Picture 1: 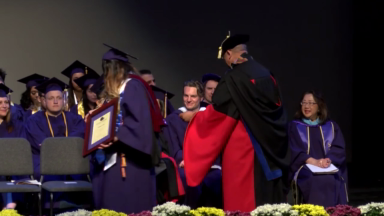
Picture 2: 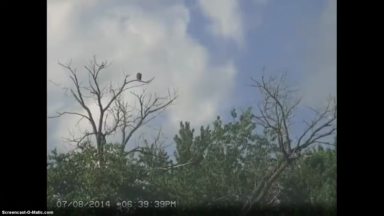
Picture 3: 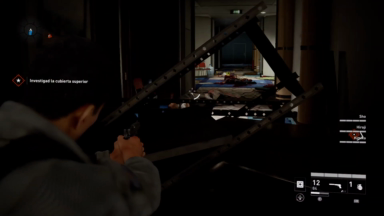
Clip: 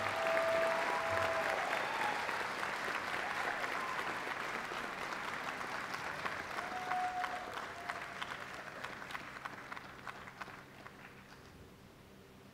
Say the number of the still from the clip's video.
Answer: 1